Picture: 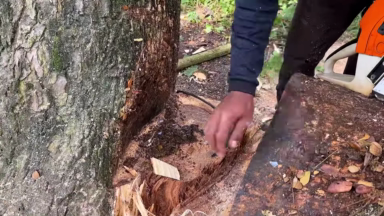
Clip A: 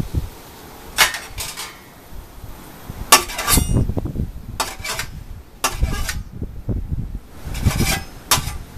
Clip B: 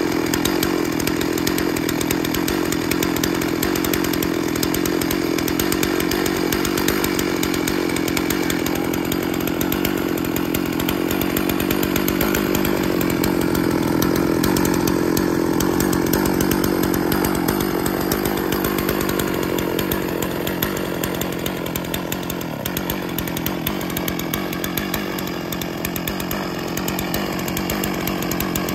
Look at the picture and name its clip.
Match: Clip B